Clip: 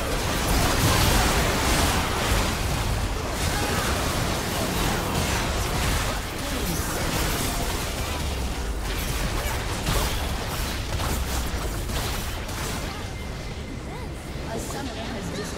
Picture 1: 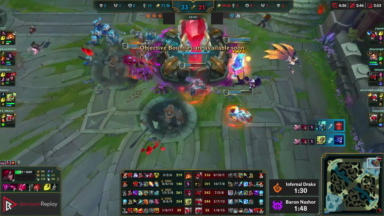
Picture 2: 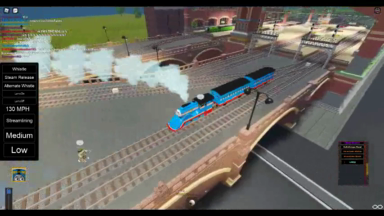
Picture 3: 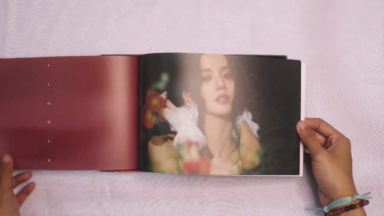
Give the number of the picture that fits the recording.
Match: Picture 1